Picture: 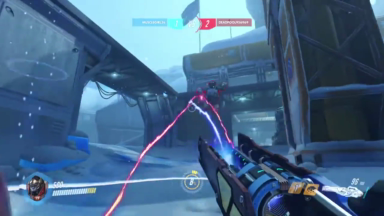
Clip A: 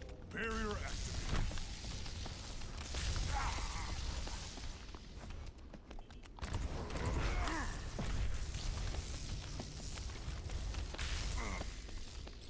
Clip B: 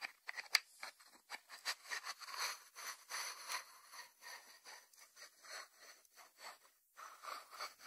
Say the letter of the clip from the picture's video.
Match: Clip A